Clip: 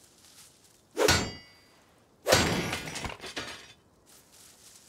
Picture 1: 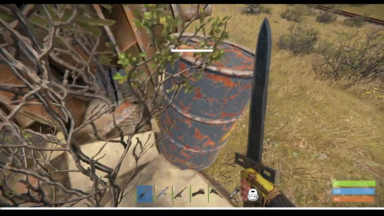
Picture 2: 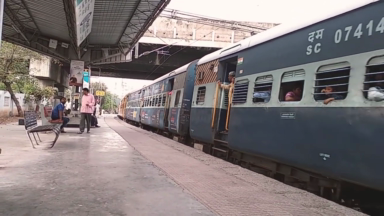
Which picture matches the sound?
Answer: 1